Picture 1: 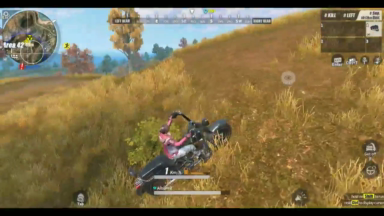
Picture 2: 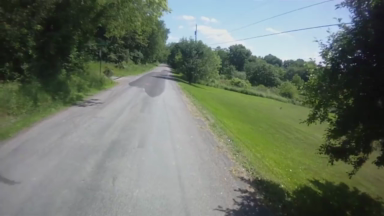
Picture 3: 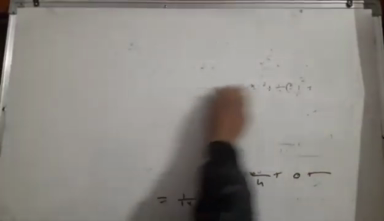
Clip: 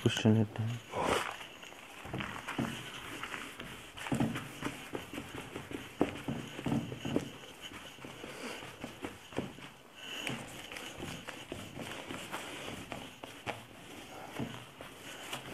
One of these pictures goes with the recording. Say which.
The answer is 3